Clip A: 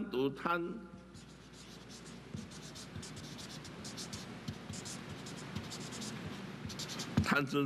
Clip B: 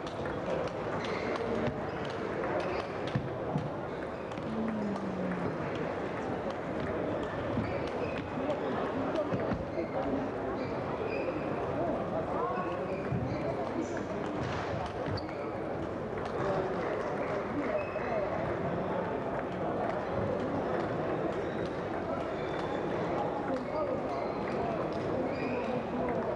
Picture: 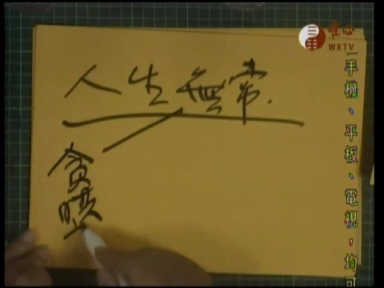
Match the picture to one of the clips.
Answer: A